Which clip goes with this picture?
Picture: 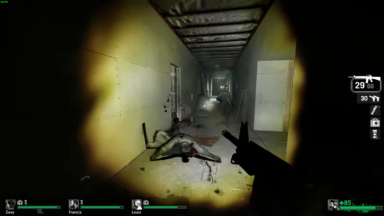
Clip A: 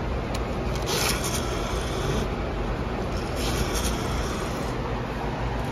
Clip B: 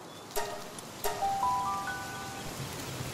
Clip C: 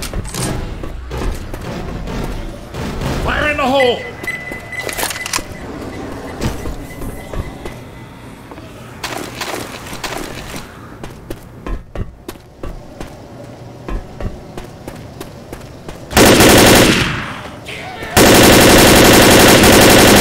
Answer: C